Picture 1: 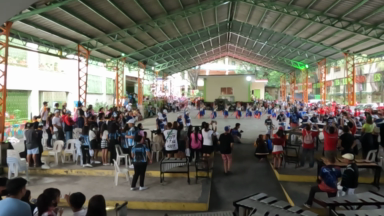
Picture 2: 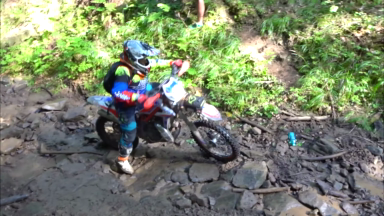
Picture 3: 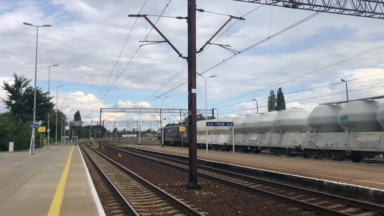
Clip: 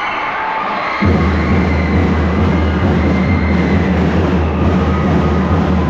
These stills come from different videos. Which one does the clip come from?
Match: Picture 1